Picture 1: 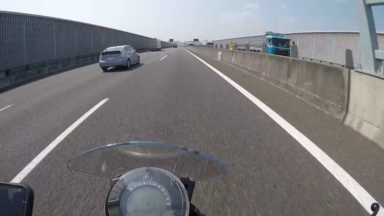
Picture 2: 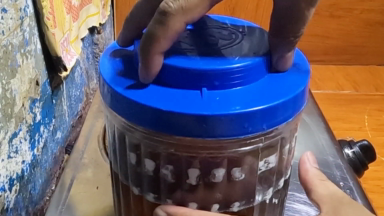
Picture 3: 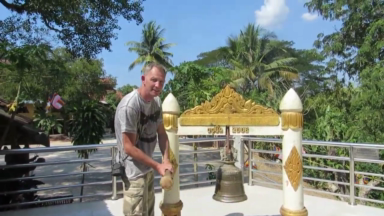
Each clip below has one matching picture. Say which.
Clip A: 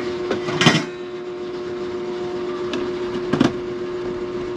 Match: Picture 2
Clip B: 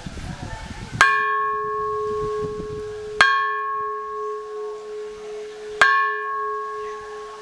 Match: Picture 3